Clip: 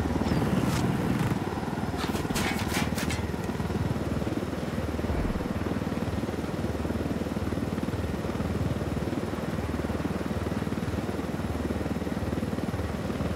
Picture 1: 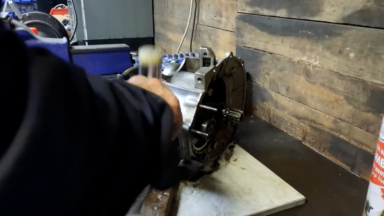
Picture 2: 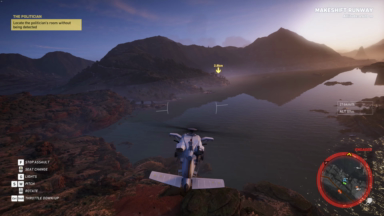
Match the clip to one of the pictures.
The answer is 2